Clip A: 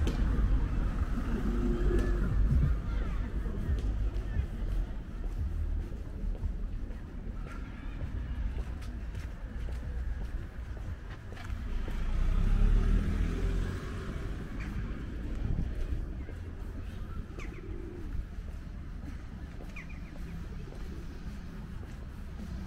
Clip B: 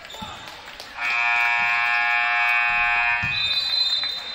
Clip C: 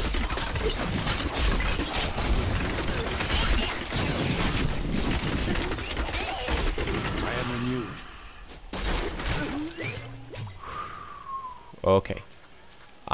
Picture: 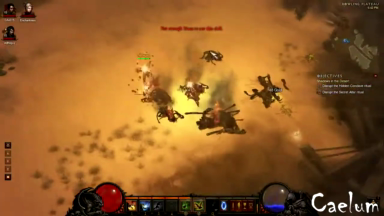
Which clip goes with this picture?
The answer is C